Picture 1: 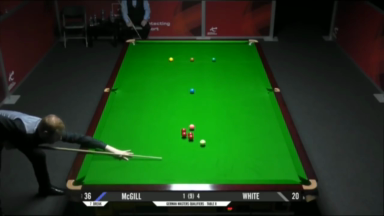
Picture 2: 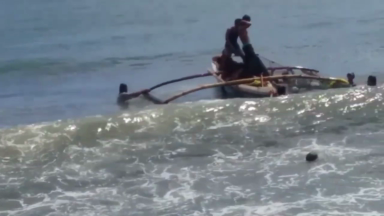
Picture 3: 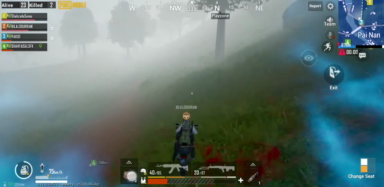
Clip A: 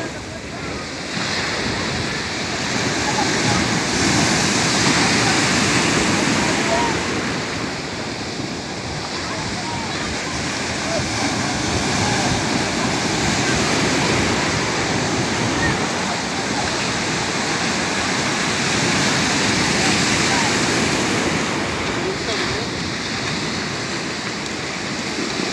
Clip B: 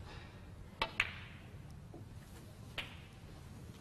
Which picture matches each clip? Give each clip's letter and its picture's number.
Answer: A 2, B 1